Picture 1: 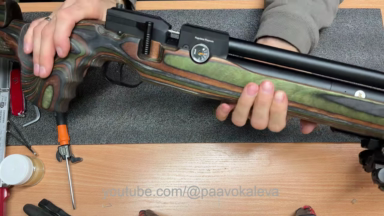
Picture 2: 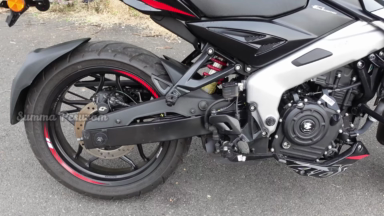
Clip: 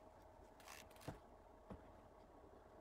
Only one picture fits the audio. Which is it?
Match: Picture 1